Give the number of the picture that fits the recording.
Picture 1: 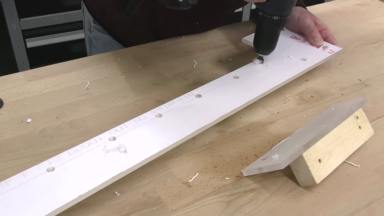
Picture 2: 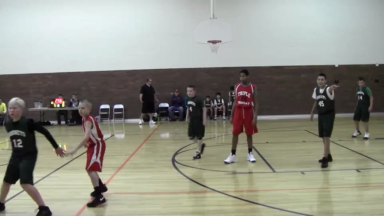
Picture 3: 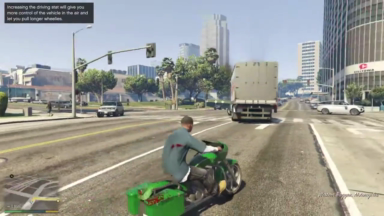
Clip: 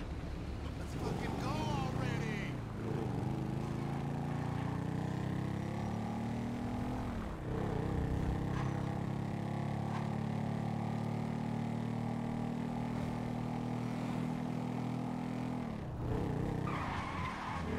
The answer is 3